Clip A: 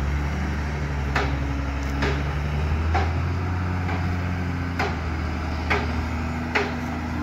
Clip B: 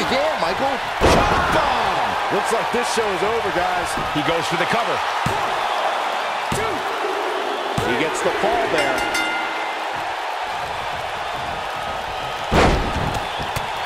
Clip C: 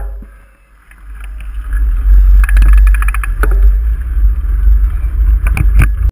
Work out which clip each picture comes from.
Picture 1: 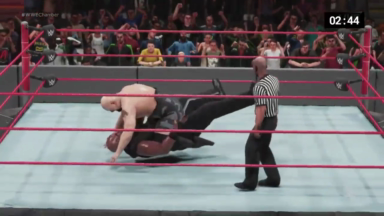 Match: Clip B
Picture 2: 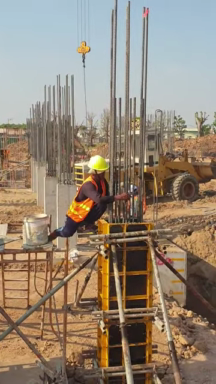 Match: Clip A